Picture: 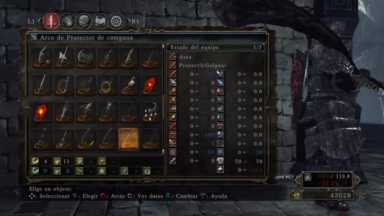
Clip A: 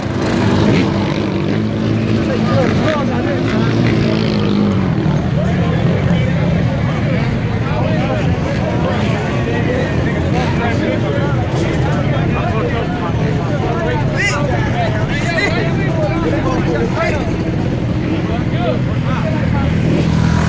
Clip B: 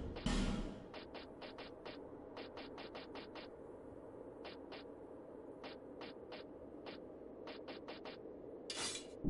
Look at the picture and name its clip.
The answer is B